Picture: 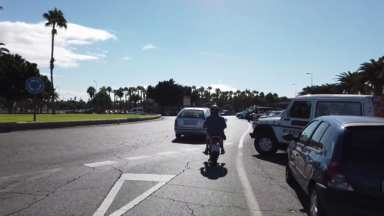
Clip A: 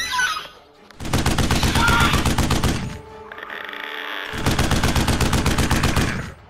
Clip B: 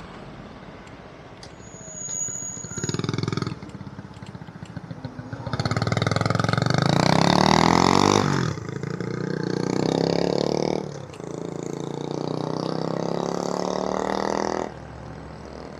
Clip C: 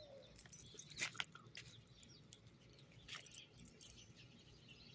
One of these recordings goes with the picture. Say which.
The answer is B